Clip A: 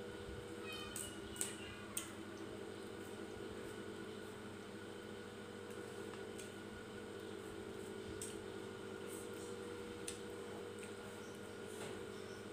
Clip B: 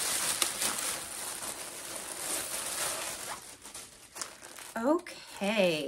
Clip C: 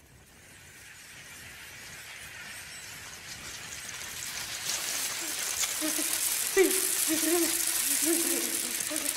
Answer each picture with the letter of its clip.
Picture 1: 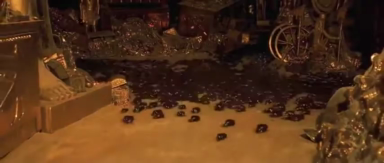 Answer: C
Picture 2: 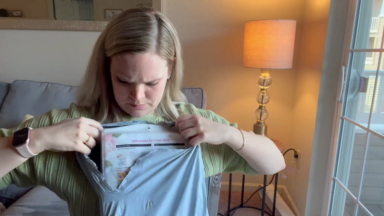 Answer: B